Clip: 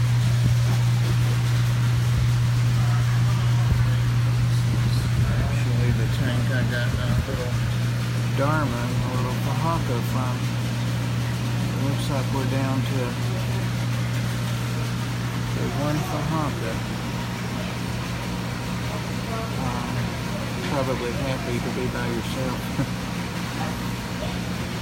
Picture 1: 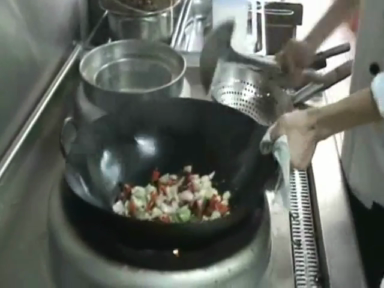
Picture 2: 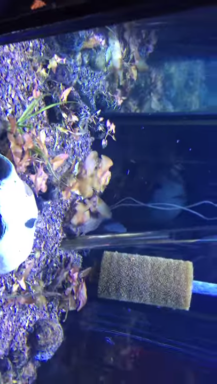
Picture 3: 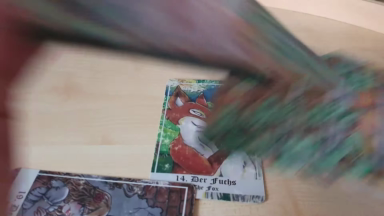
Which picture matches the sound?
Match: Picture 2